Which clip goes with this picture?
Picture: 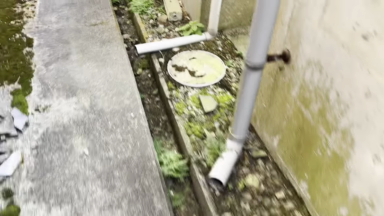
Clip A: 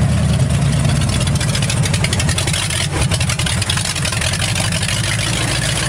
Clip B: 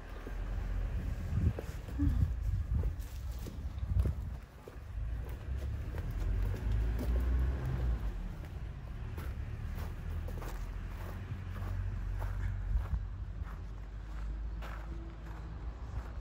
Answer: B